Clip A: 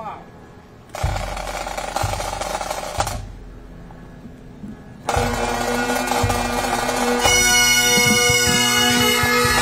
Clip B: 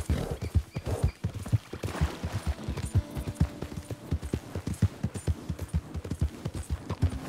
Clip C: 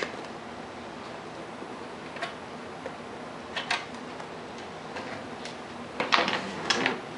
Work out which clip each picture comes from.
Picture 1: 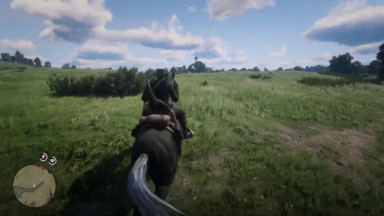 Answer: B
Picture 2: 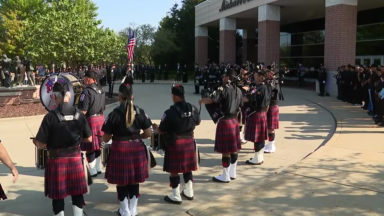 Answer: A